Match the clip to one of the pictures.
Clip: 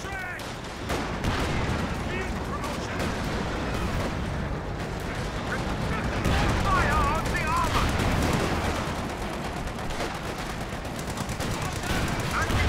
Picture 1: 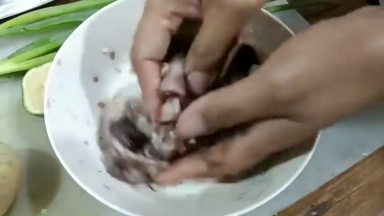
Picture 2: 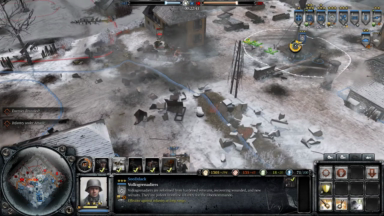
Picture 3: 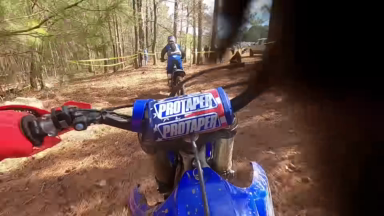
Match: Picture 2